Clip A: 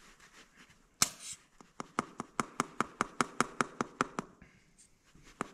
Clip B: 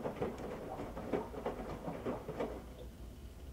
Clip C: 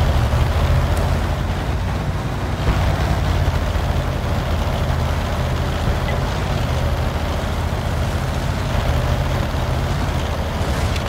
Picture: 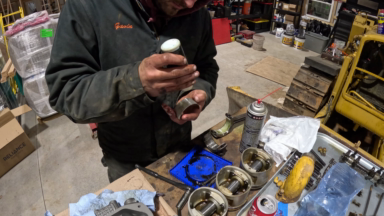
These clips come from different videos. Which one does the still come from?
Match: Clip A